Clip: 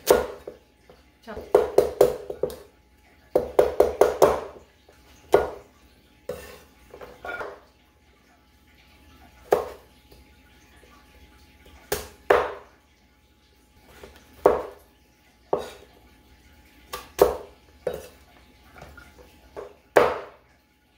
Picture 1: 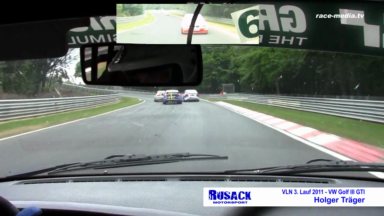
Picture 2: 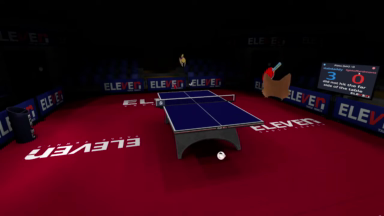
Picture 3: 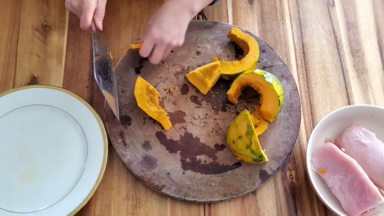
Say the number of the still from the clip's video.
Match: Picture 3